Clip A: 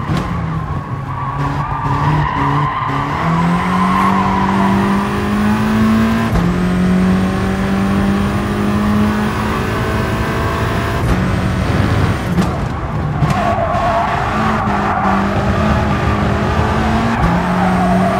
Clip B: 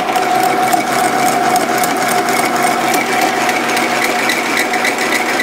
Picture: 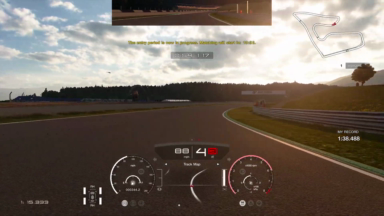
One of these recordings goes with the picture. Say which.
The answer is A